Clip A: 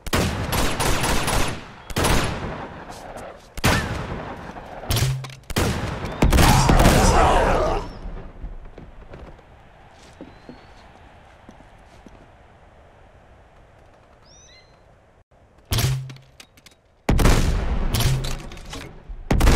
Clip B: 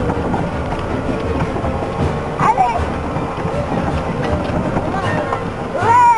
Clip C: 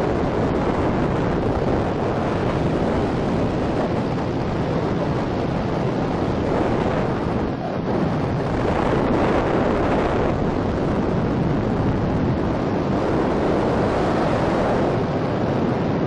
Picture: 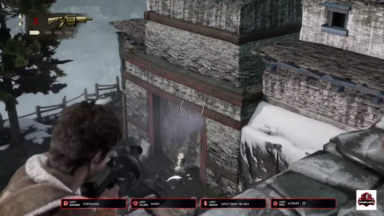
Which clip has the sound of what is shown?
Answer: A